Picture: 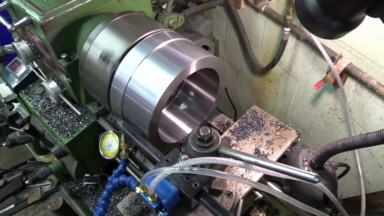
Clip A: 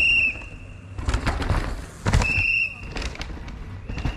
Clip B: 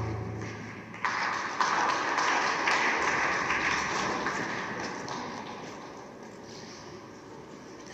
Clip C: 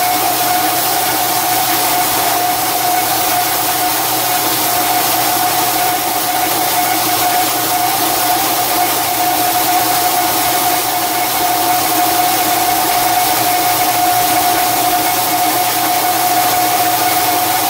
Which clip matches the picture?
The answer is C